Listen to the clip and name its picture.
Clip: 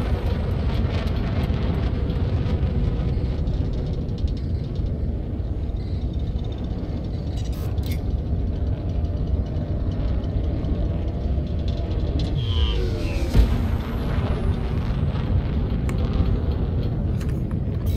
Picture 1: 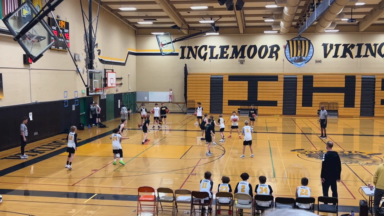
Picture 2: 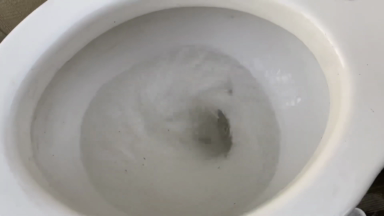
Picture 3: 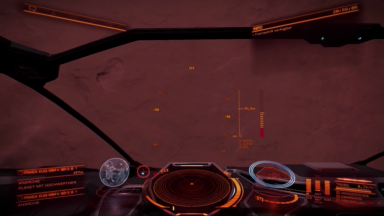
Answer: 3